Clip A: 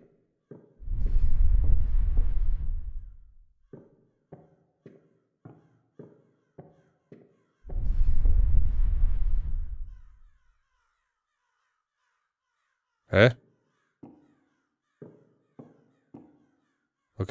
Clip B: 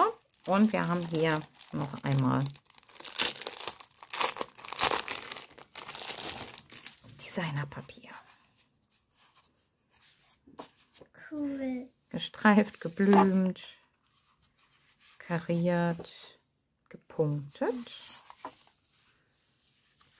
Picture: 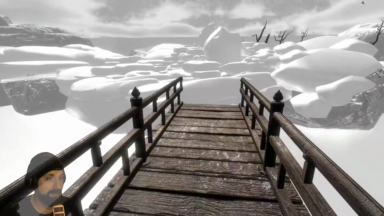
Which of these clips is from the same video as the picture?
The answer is A